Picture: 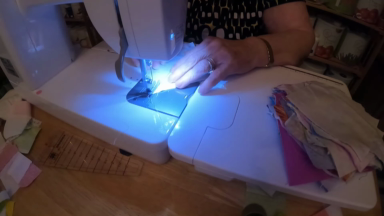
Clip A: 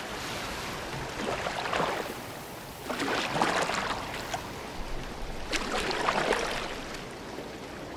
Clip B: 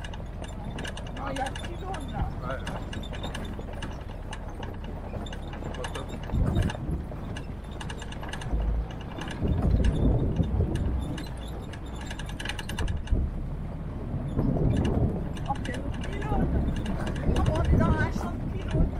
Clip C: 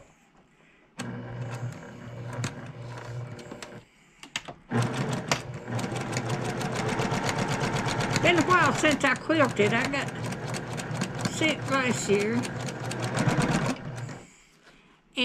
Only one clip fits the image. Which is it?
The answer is C